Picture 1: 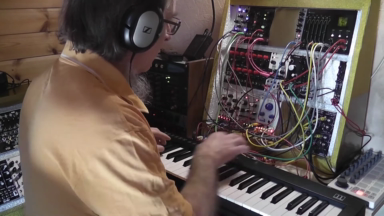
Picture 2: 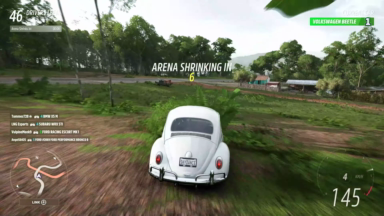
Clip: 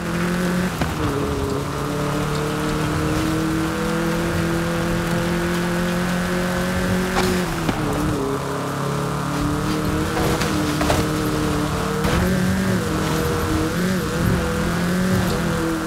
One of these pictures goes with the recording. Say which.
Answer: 2